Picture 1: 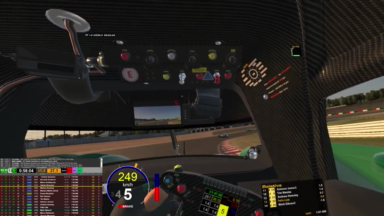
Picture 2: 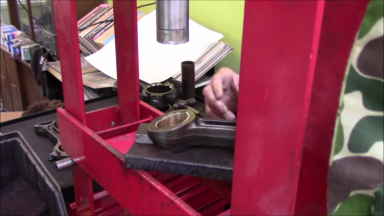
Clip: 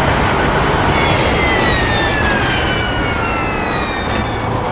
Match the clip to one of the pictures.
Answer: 1